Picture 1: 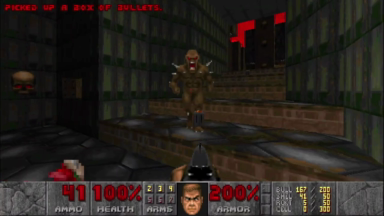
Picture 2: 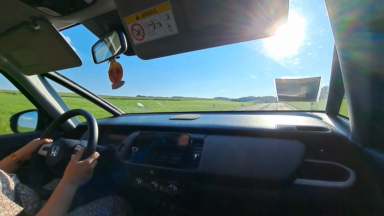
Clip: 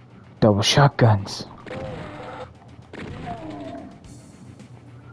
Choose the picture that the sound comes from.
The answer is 1